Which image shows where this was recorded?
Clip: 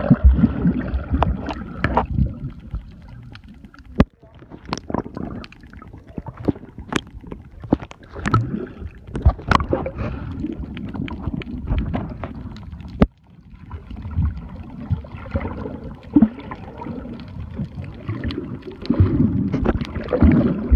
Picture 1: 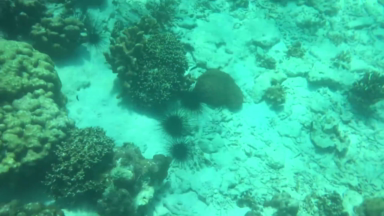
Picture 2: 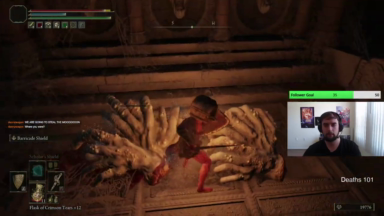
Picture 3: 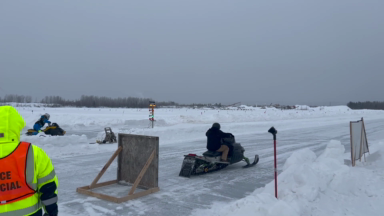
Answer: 1